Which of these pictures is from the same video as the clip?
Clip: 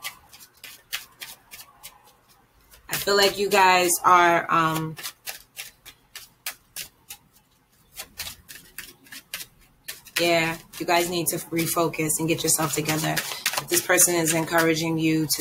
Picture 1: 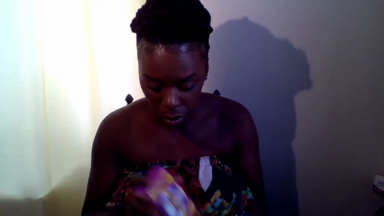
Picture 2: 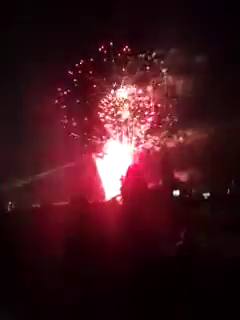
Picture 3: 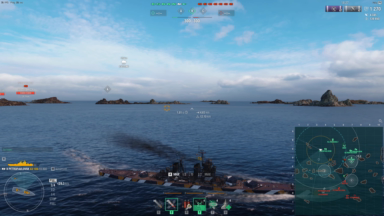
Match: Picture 1